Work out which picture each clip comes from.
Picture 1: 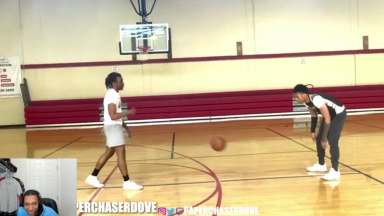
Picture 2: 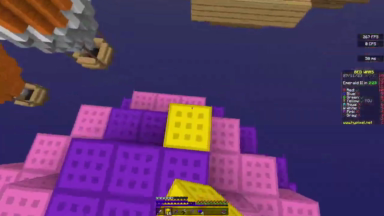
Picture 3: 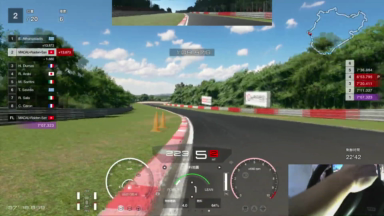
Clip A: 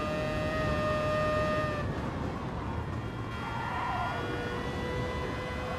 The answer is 3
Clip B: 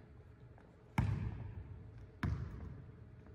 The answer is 1